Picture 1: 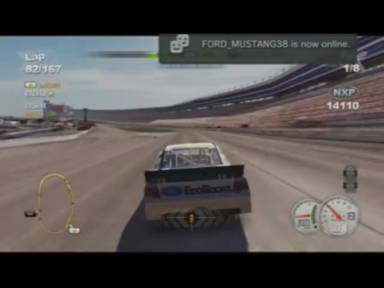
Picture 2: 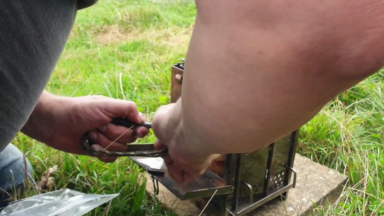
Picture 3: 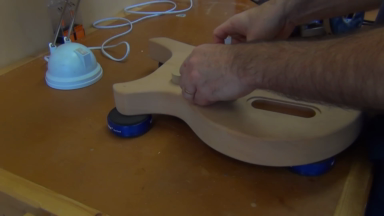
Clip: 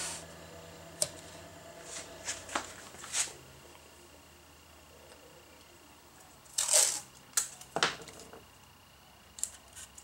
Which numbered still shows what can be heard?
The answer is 3